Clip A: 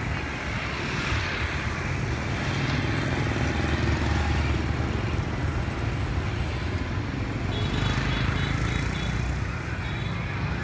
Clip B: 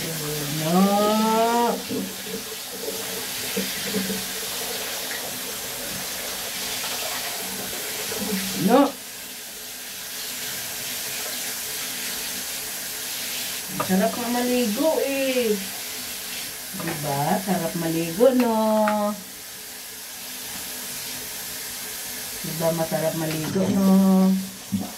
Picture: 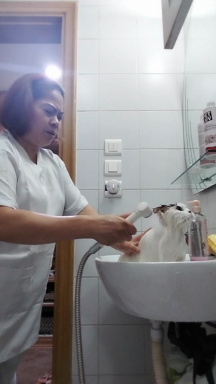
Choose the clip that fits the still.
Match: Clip B